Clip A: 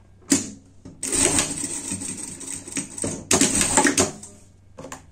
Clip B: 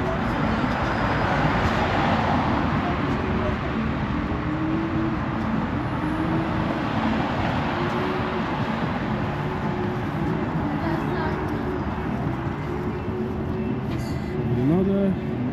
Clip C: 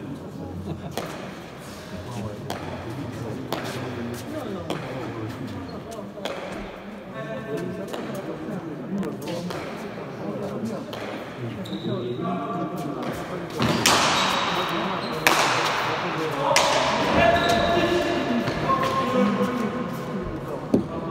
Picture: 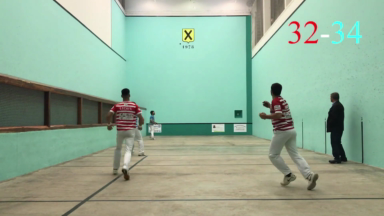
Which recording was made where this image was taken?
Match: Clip C